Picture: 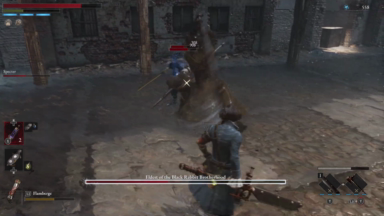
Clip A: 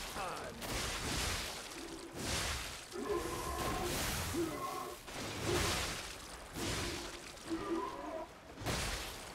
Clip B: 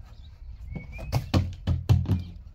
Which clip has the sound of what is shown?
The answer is A